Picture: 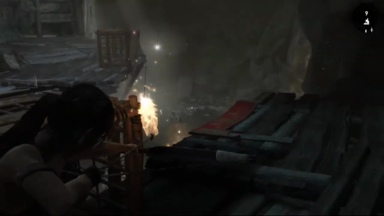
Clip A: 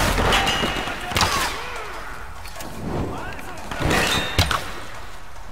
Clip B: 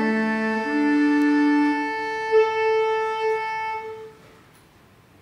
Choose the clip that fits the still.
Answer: A